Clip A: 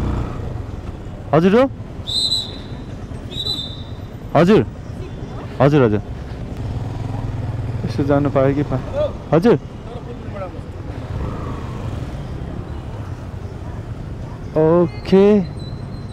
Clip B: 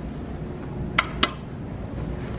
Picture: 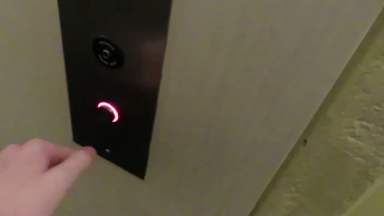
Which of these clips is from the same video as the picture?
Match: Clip B